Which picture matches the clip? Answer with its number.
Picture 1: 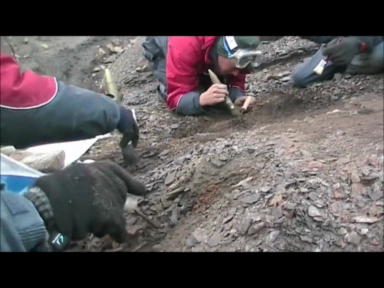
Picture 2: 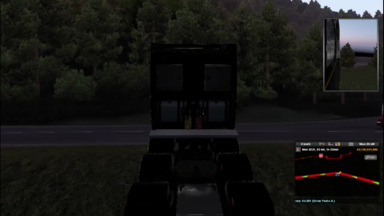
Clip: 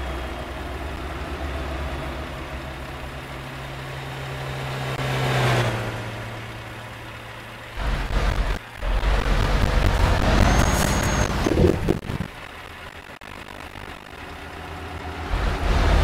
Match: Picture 2